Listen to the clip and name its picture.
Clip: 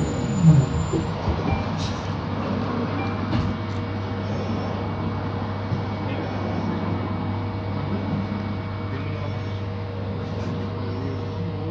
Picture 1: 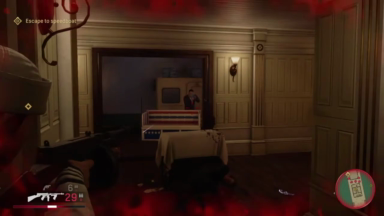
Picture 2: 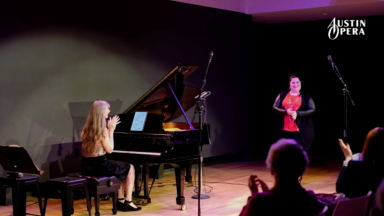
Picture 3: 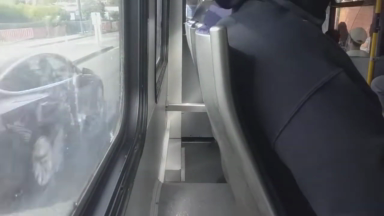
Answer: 3